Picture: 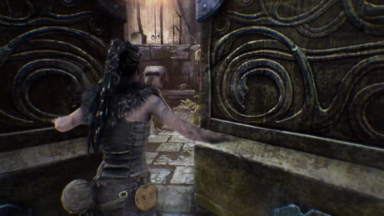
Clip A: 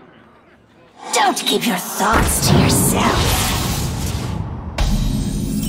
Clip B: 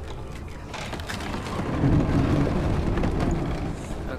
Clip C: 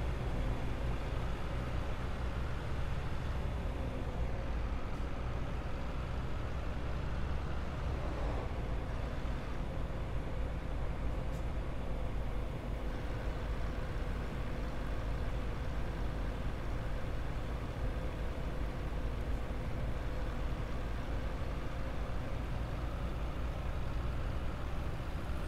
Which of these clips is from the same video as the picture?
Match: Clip B